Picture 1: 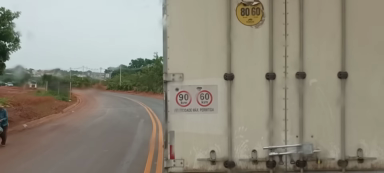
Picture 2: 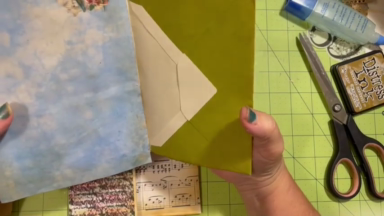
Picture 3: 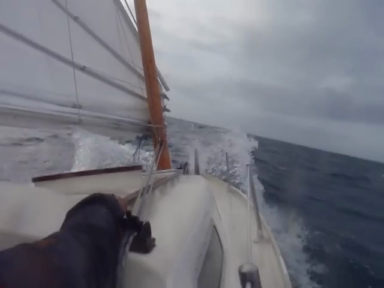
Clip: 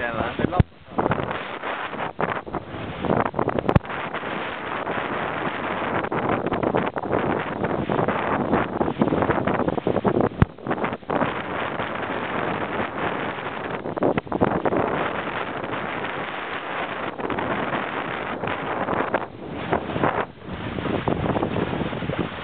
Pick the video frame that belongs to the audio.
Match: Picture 3